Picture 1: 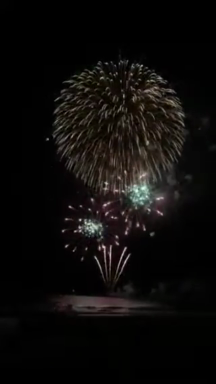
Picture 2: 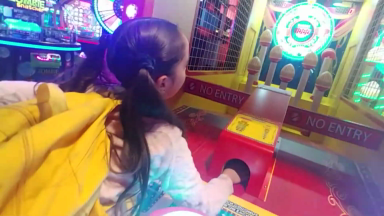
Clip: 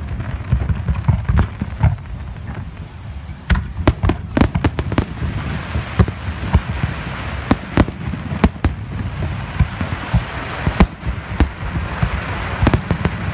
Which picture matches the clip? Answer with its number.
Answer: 1